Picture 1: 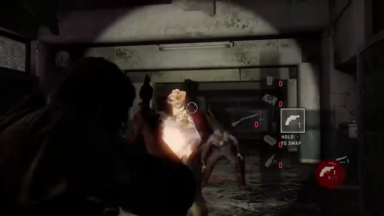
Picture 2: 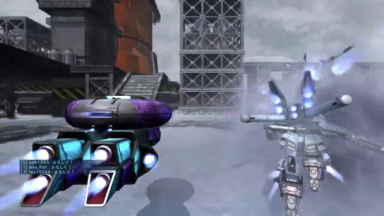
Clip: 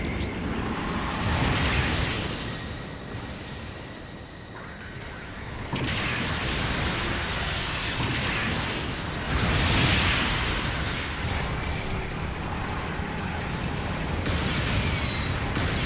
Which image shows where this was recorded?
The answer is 2